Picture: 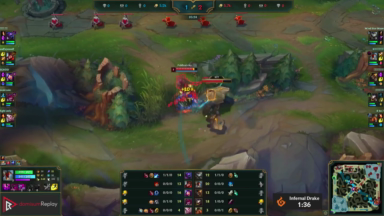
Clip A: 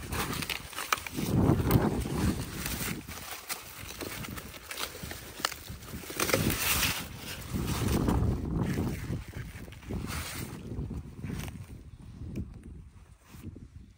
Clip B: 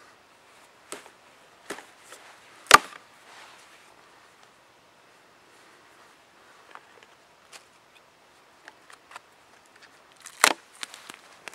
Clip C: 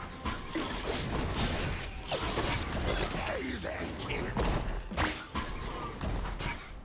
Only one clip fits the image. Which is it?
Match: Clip C